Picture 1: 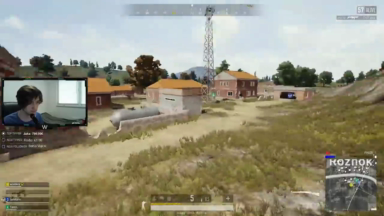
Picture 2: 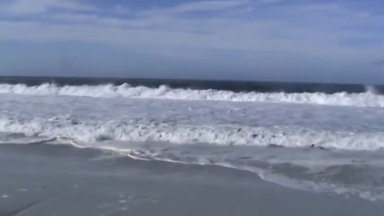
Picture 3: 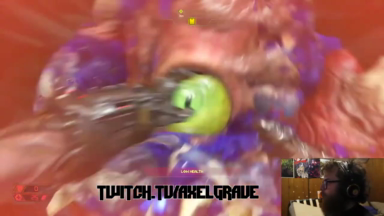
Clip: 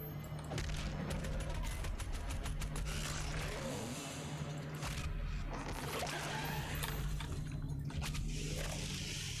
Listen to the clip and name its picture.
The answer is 3